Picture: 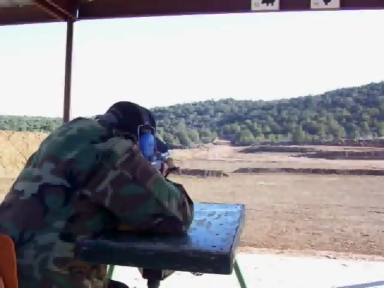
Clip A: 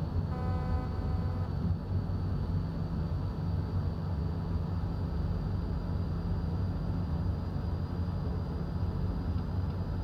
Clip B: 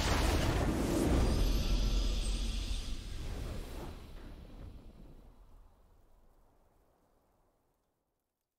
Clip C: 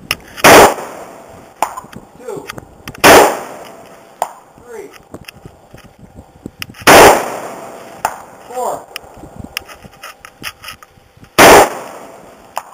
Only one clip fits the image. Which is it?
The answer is C